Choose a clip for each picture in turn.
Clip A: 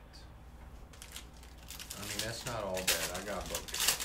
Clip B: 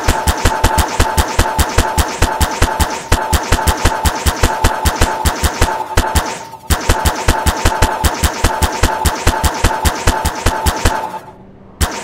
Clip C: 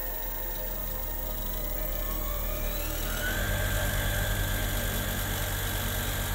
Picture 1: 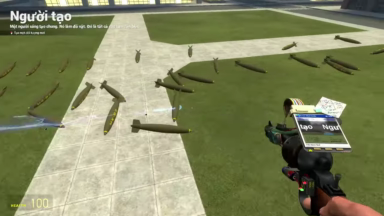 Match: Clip B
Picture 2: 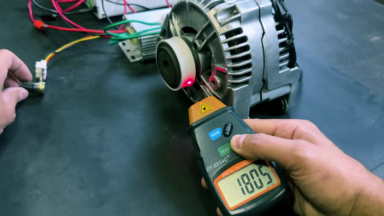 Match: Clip C